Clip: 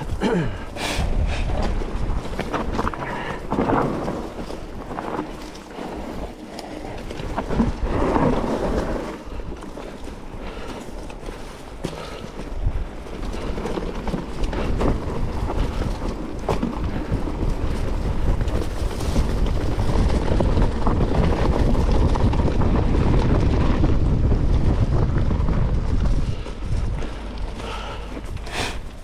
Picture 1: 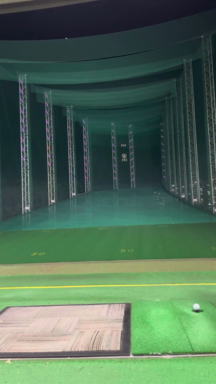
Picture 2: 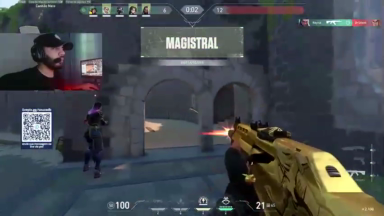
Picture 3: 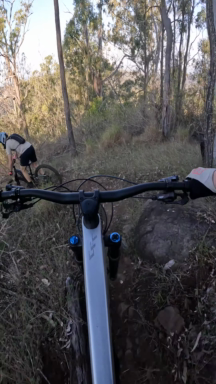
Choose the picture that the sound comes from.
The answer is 3